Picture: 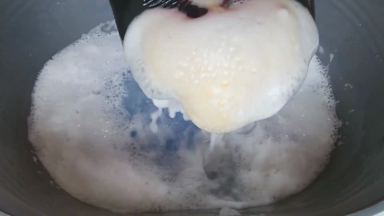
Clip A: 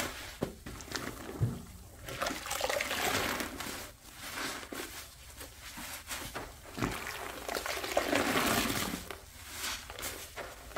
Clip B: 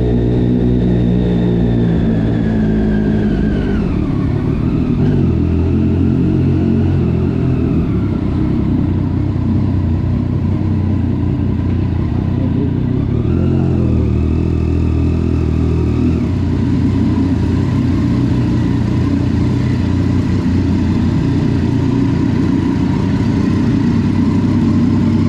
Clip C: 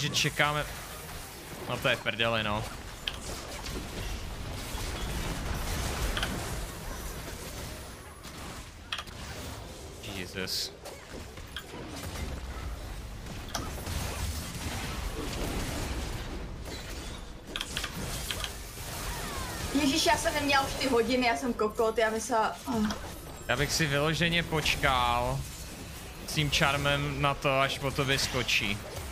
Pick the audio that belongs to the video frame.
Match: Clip A